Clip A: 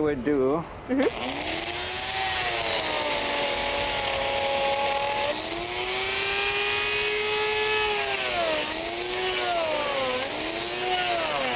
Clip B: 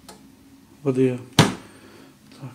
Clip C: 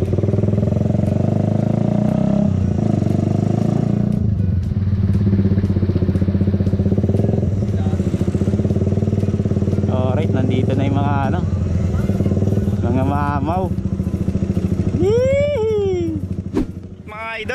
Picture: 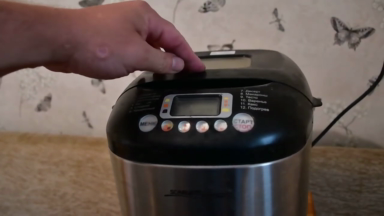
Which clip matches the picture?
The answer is B